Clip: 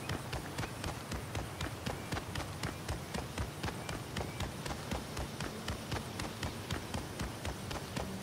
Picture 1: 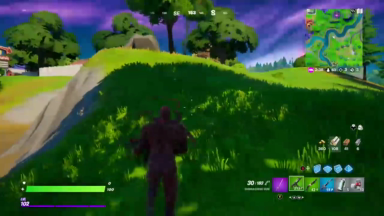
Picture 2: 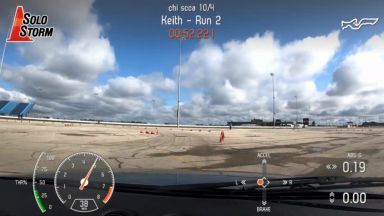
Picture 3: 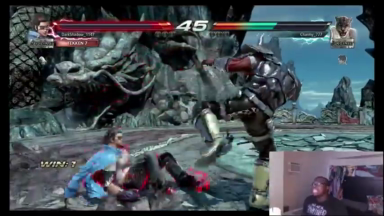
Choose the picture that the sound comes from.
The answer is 1